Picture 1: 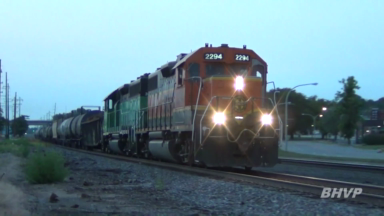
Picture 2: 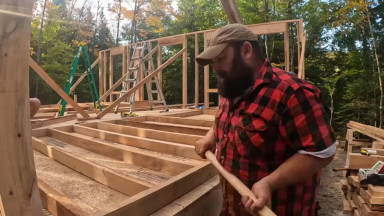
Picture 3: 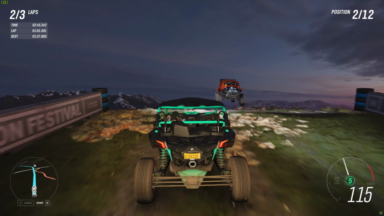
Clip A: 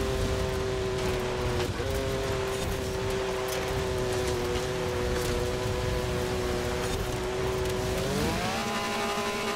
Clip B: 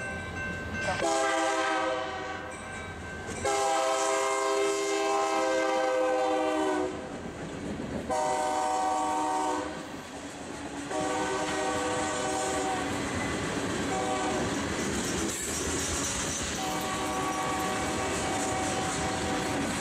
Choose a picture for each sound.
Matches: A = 3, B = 1